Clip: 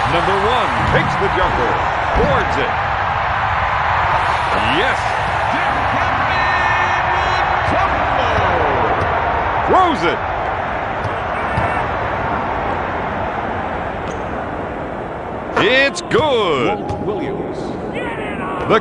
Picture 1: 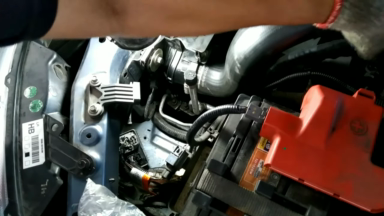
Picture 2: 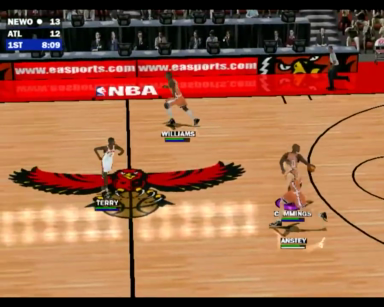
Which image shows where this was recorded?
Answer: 2